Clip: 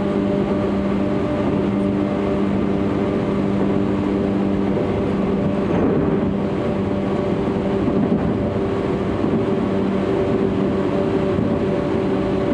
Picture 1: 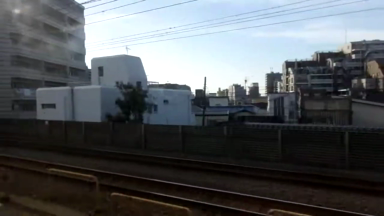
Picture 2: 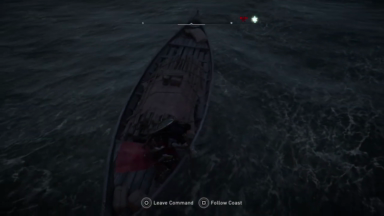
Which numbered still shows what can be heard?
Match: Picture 1